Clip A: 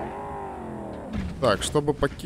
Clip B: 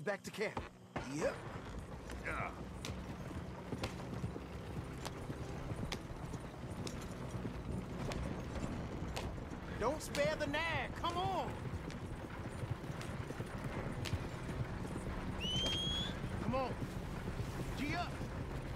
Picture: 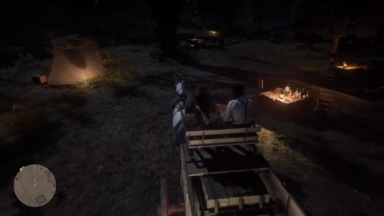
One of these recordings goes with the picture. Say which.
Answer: B